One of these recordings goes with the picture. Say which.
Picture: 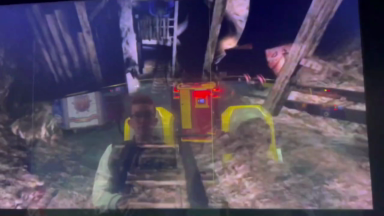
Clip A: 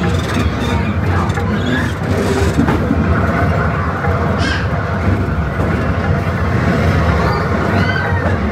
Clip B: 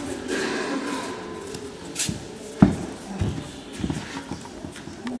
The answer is A